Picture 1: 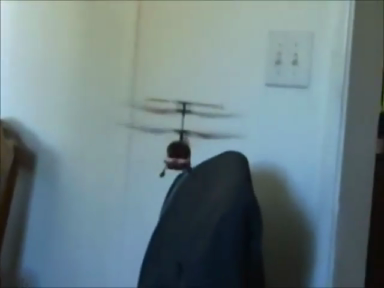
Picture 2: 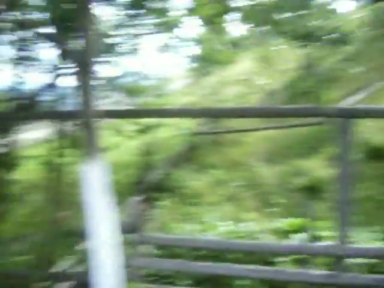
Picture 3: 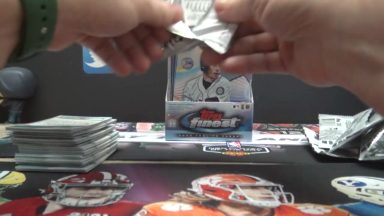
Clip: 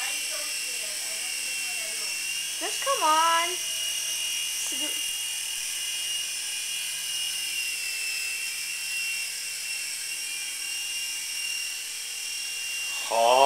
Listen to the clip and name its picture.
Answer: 1